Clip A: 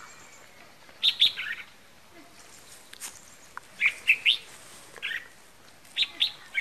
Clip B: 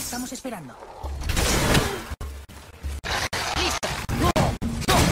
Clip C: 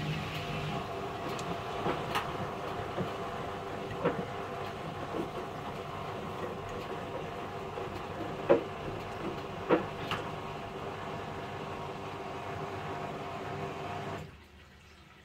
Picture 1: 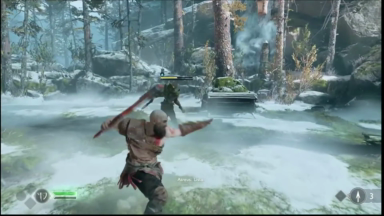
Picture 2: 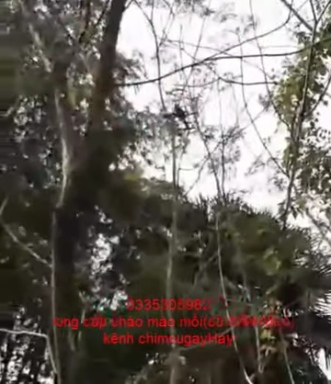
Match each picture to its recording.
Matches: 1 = B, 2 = A